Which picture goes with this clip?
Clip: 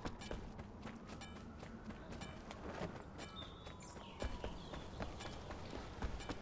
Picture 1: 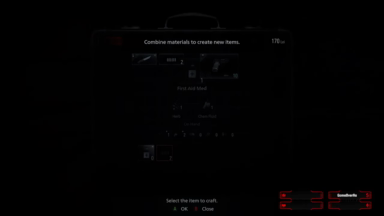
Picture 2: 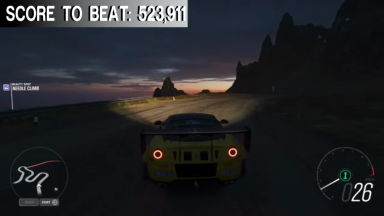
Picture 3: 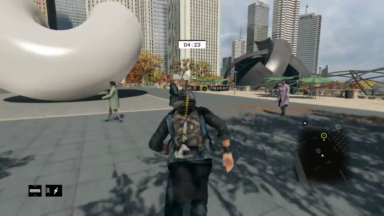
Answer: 3